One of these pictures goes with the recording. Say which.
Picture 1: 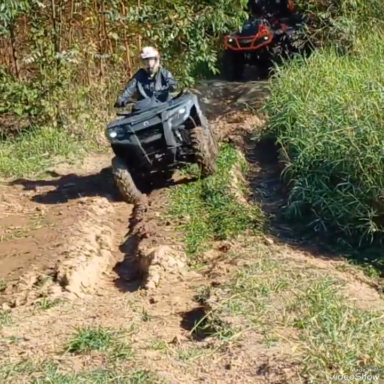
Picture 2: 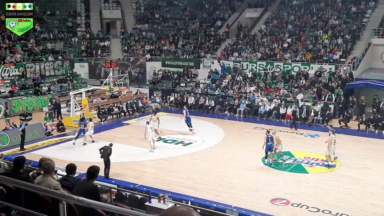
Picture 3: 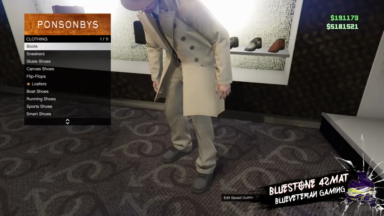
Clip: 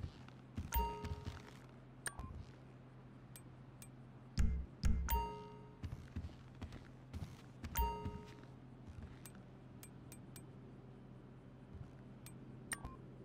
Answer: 3